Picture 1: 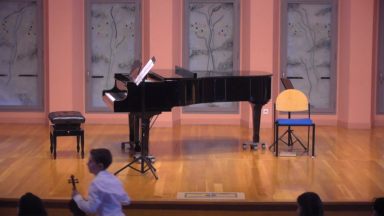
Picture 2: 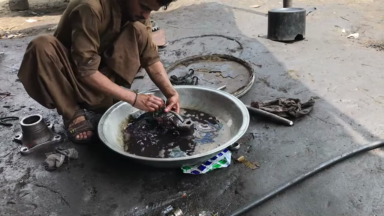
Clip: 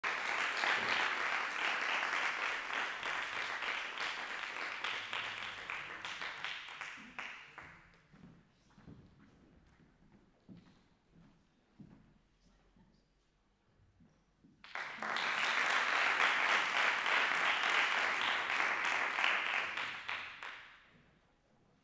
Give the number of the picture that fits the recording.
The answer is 1